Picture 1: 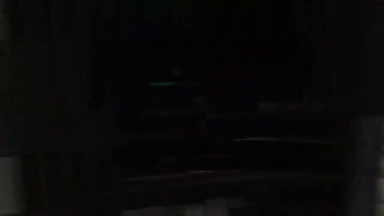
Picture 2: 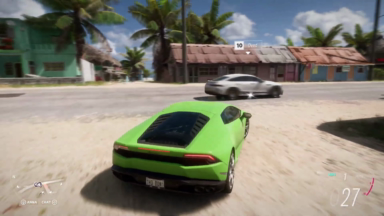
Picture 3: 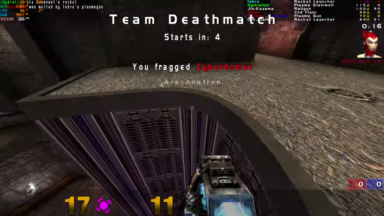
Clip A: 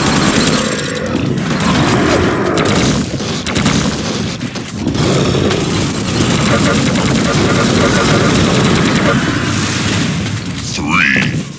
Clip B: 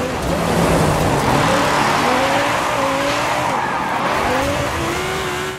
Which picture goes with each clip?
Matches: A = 3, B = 2